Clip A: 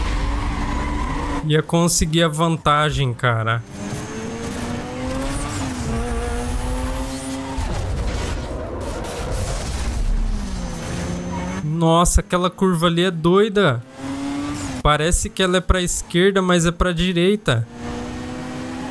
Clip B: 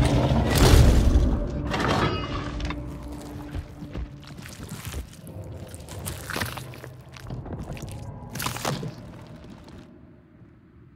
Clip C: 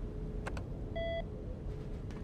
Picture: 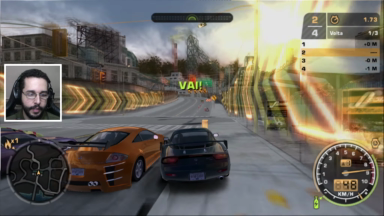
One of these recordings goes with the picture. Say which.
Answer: A